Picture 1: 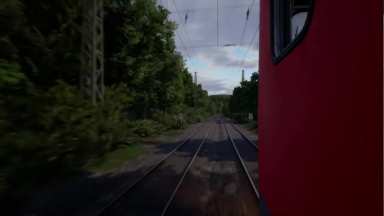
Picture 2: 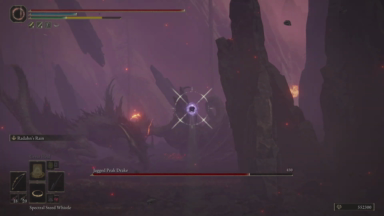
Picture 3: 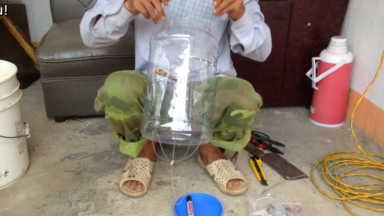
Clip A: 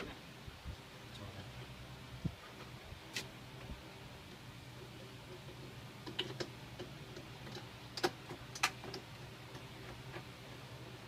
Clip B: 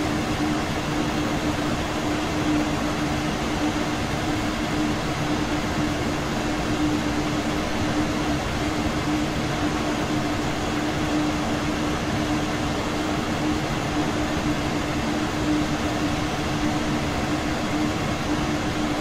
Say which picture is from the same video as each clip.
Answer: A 3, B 1